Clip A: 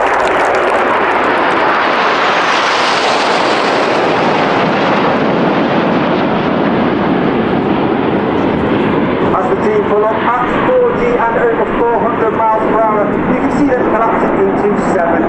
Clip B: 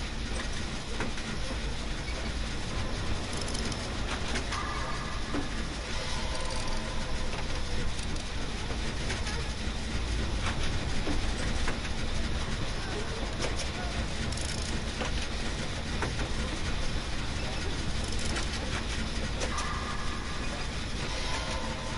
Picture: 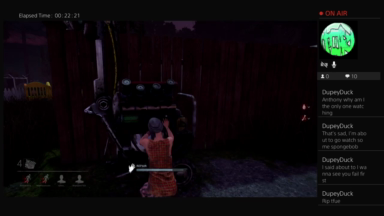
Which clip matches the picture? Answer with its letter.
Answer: B